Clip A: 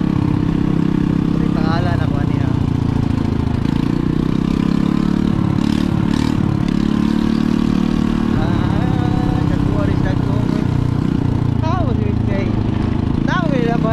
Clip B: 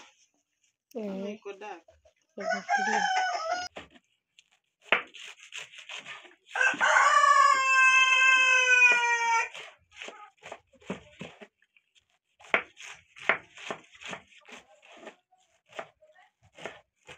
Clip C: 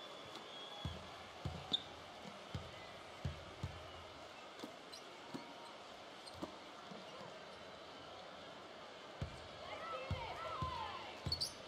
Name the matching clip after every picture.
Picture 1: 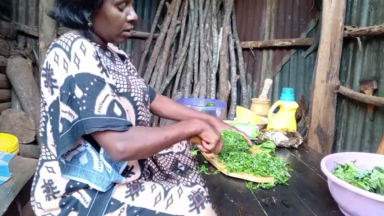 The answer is B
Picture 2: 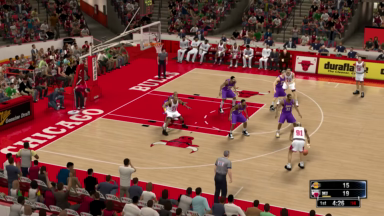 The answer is C